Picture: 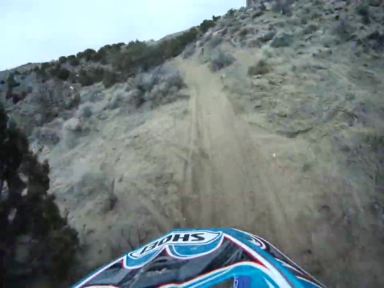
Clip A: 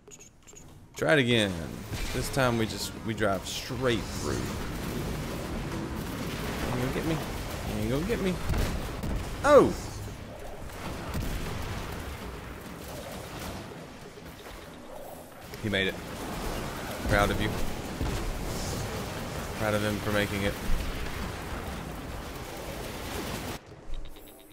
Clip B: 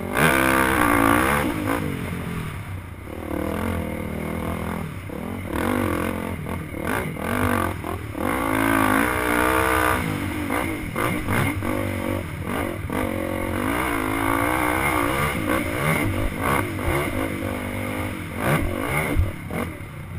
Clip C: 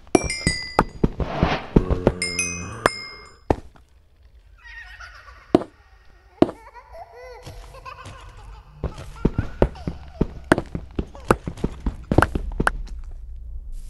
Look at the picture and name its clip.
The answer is B